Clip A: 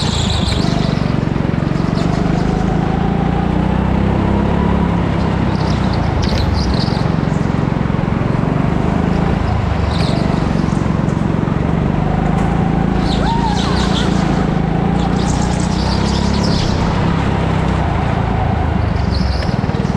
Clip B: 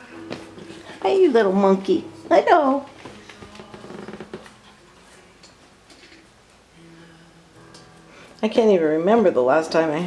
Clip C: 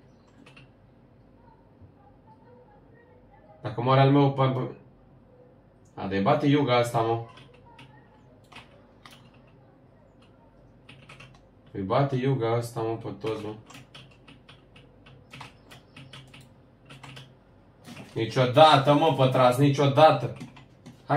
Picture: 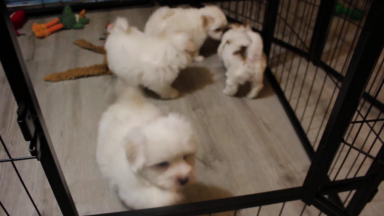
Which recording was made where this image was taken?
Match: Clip B